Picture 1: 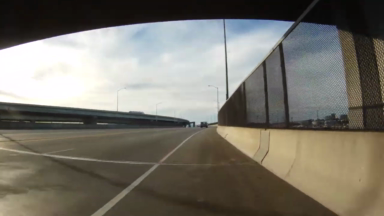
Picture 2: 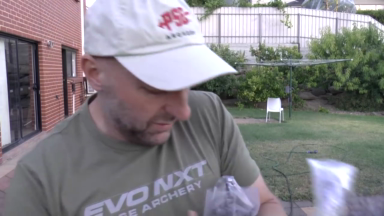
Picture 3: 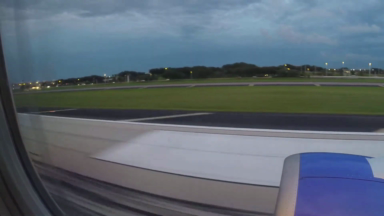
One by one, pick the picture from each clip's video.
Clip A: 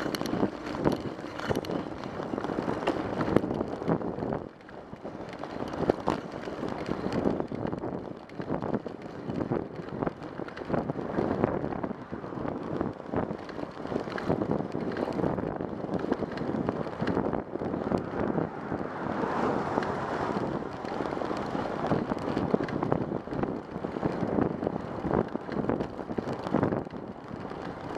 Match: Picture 1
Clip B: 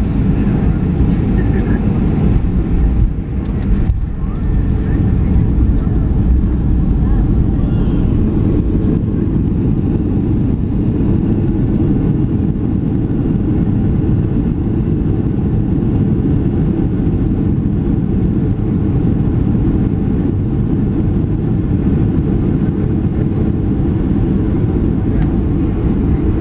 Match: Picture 3